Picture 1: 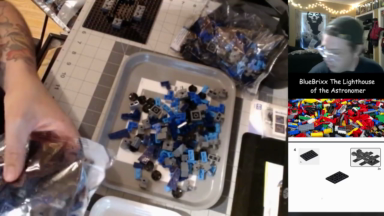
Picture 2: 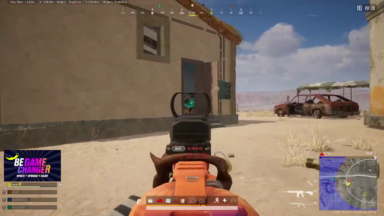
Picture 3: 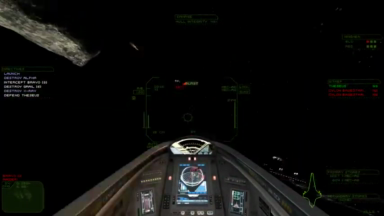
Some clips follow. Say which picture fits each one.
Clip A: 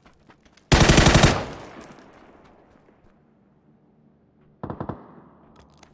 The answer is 2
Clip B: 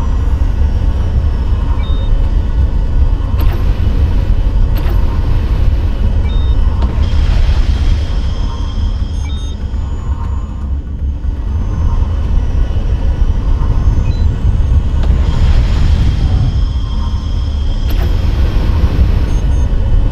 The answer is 3